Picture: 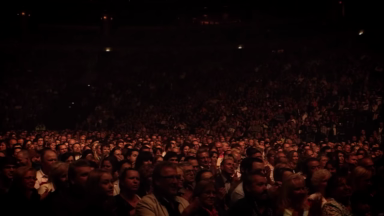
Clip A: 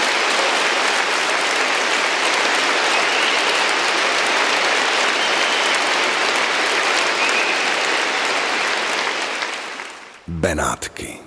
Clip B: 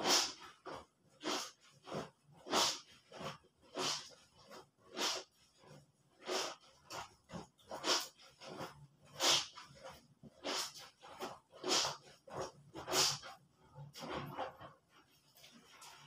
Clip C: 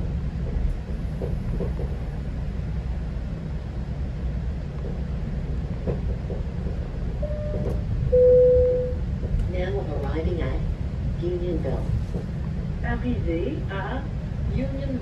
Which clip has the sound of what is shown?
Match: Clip A